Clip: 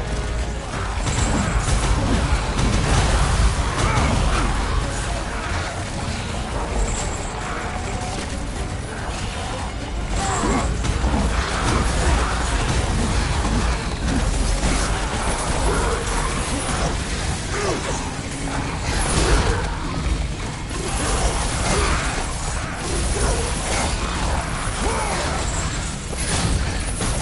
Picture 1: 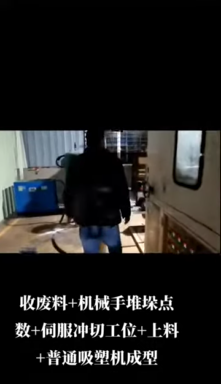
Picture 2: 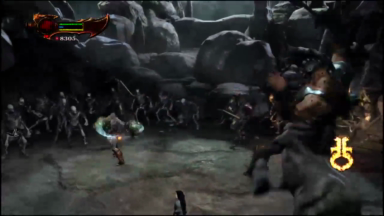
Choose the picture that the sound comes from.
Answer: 2